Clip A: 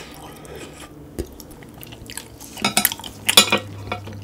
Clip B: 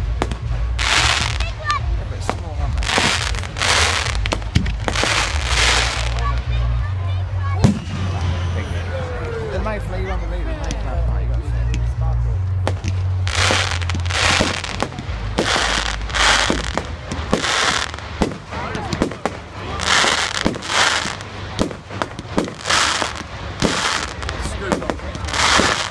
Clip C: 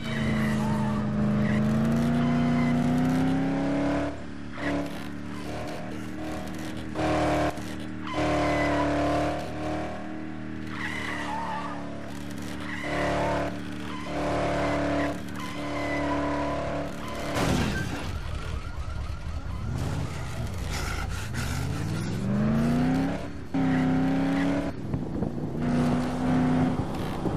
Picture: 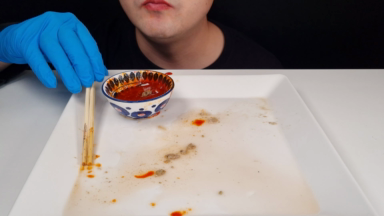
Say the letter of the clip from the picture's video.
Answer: A